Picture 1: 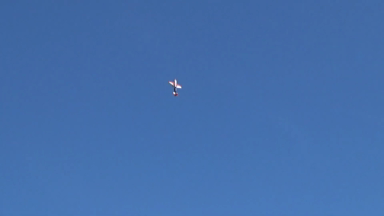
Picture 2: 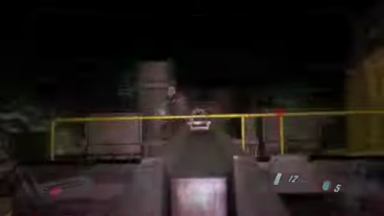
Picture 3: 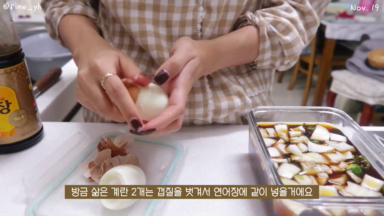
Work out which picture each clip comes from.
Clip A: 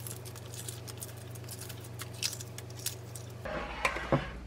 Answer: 3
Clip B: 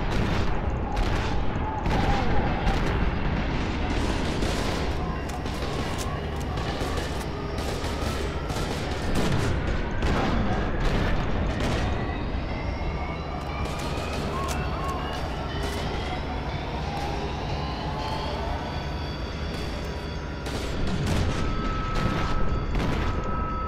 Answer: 2